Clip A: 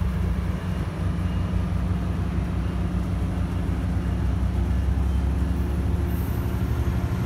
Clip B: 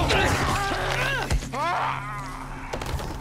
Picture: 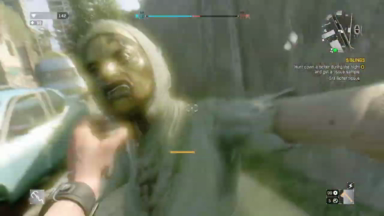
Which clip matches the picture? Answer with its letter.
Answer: B